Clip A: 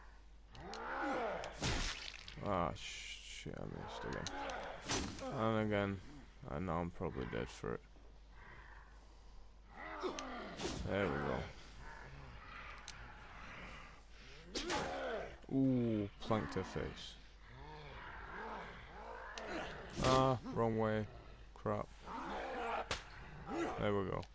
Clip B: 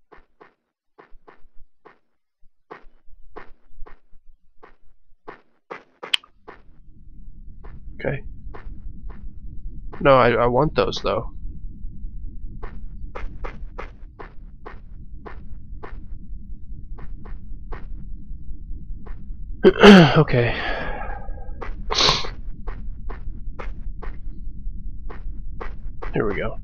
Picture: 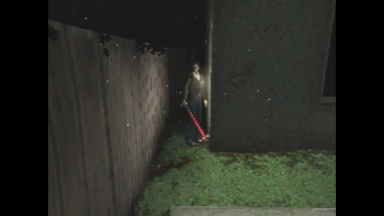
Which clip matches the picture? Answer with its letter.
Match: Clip B